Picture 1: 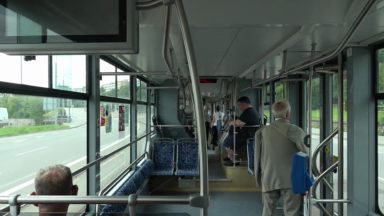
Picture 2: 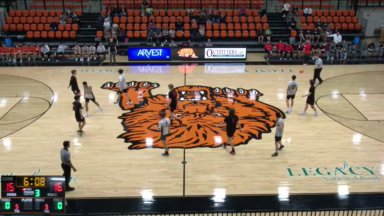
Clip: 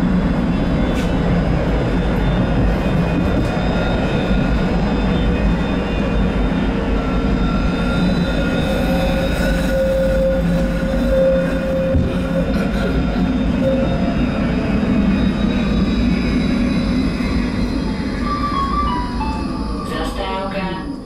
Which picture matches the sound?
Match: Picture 1